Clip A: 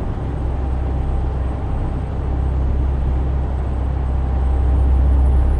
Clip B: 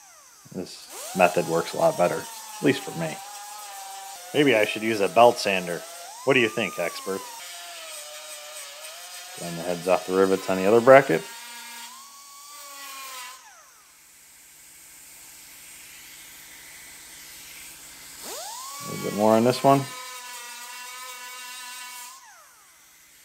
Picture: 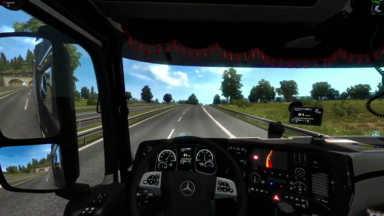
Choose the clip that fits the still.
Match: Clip A